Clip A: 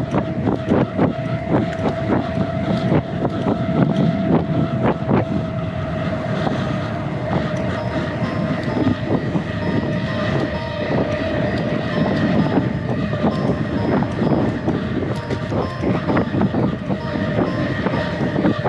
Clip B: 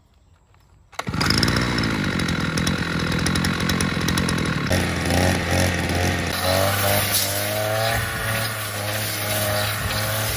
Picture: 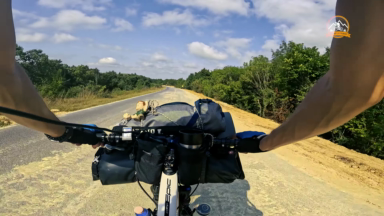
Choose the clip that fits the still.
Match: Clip A